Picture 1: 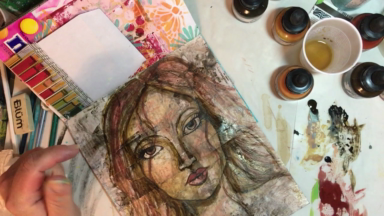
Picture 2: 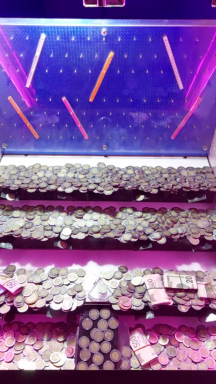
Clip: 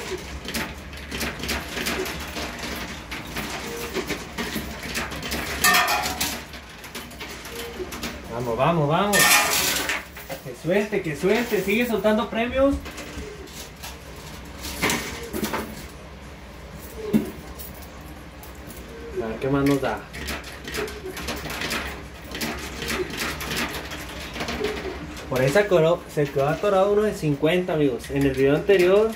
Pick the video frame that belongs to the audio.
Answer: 2